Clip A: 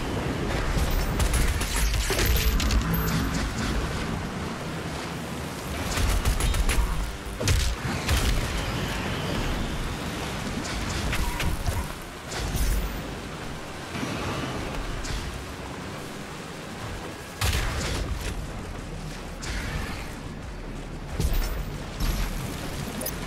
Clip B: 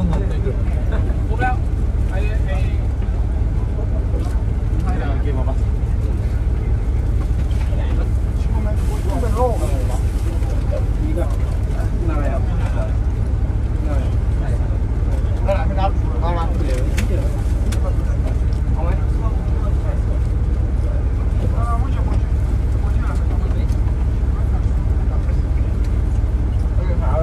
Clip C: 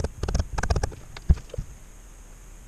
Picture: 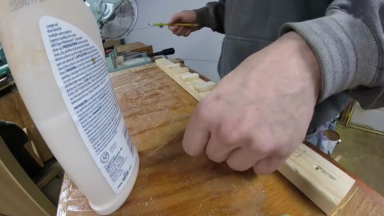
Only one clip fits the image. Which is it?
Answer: C